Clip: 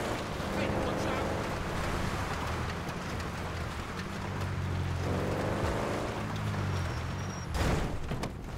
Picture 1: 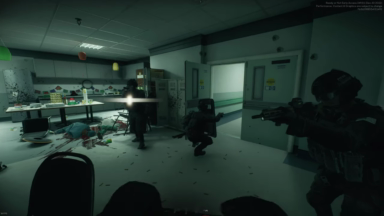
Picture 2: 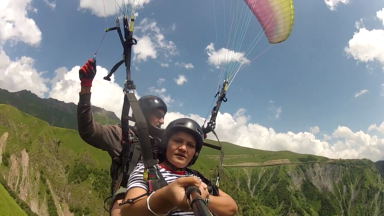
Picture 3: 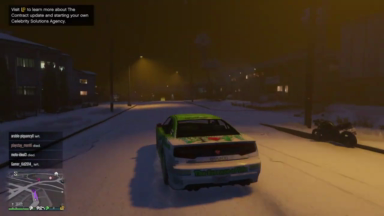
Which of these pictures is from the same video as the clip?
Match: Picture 3